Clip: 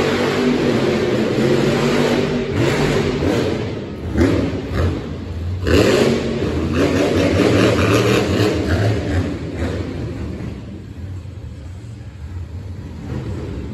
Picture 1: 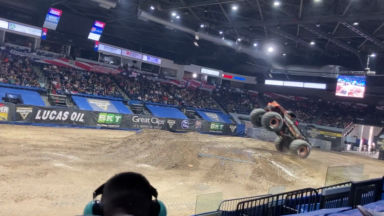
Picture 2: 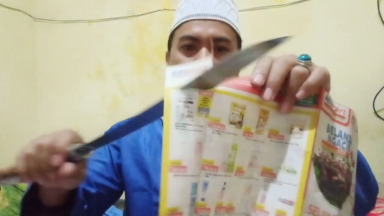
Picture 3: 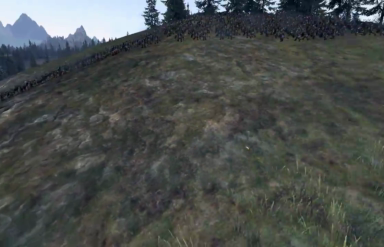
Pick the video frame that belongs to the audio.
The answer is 1